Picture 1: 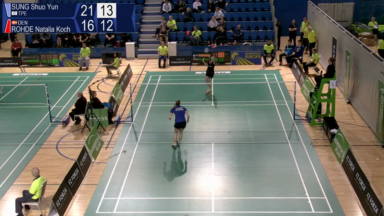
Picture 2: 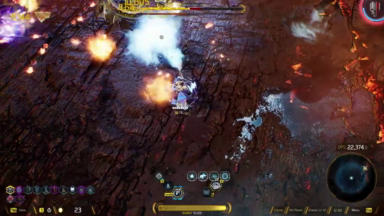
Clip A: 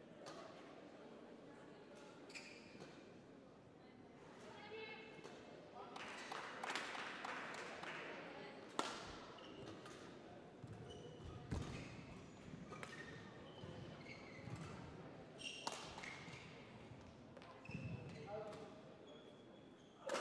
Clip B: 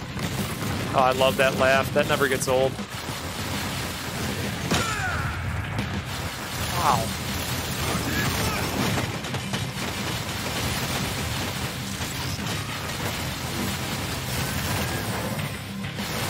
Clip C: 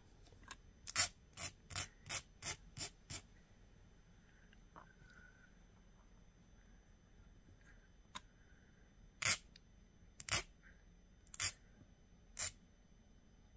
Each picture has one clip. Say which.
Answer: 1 A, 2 B